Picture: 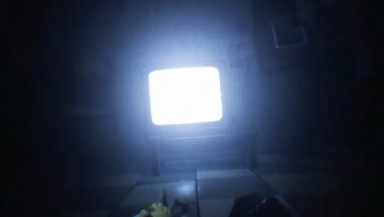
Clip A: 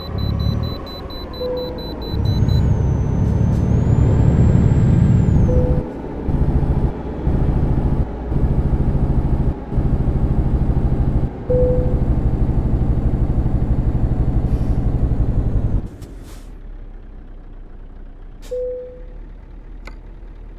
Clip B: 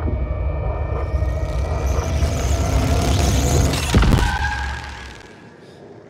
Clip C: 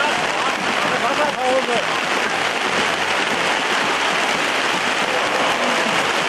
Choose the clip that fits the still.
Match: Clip B